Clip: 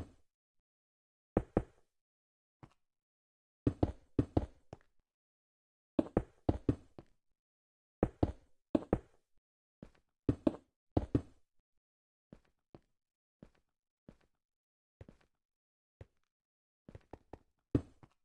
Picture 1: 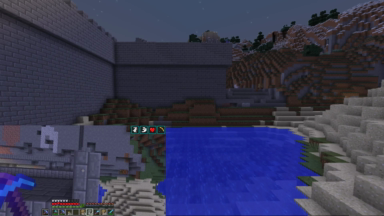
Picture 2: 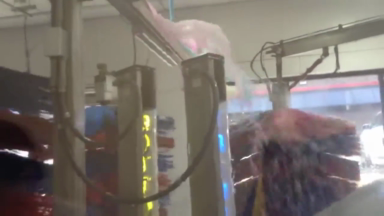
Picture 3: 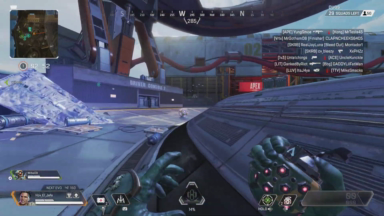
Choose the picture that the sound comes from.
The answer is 1